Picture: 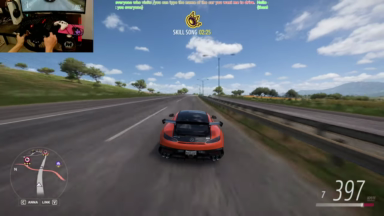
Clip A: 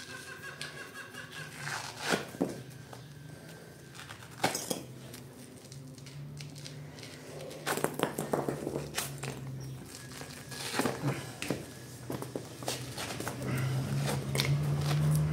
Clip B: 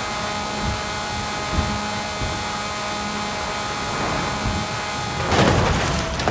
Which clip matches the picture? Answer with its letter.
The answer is B